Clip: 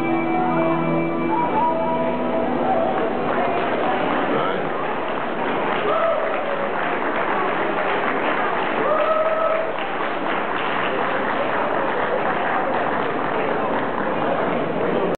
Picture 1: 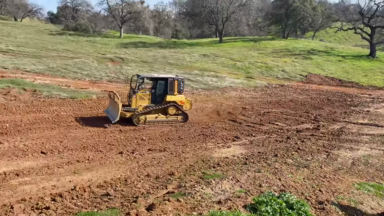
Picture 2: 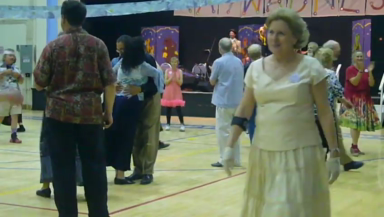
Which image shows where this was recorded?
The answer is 2